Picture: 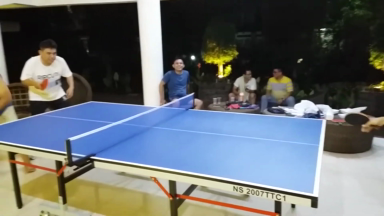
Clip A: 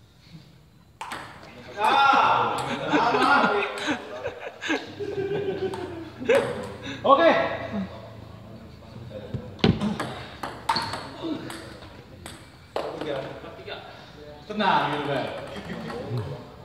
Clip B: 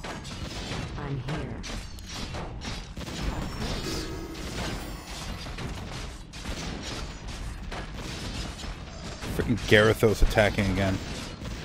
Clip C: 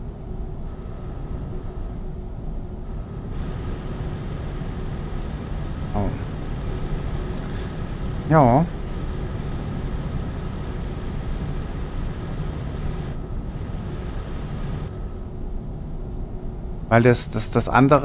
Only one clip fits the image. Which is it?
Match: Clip A